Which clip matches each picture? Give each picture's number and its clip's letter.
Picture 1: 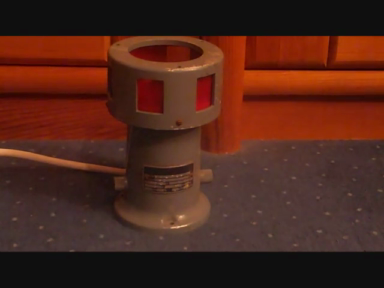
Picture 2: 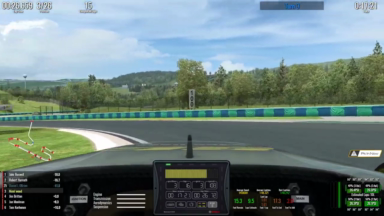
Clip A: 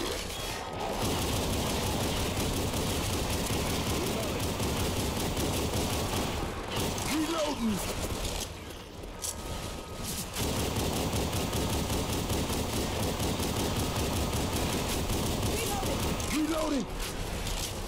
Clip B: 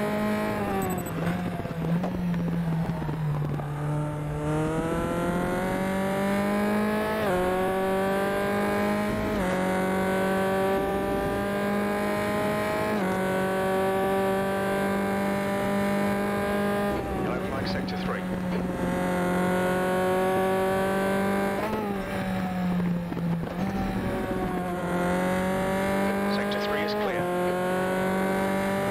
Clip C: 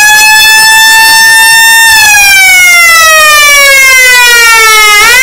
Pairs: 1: C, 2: B